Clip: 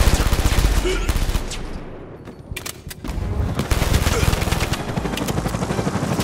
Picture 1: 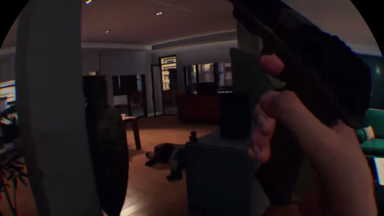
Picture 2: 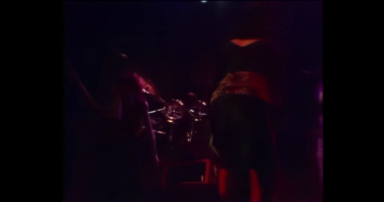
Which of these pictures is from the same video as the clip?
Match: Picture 1